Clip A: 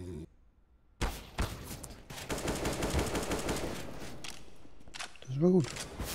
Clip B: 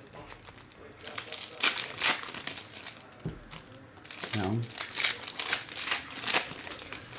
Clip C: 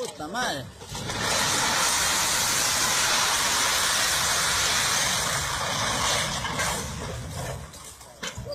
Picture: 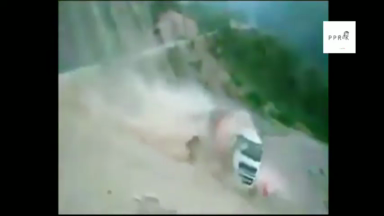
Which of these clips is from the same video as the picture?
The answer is C